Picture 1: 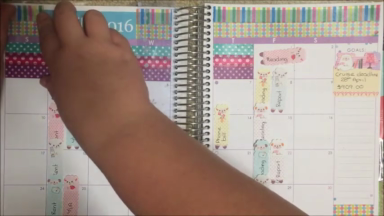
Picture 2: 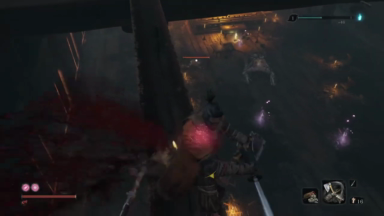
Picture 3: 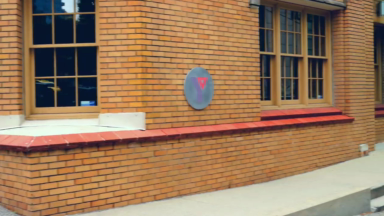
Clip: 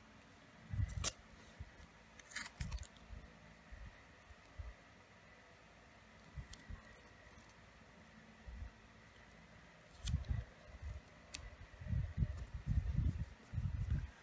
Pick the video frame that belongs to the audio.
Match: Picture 1